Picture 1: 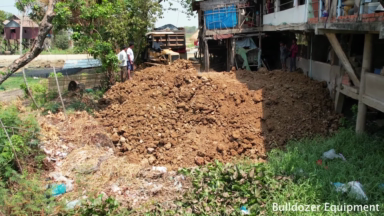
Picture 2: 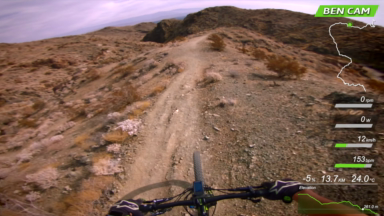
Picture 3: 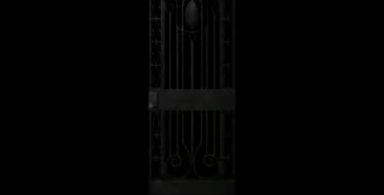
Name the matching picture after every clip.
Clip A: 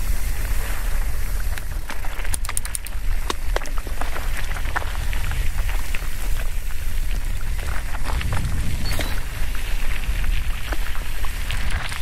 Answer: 2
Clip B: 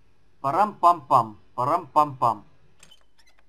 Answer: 3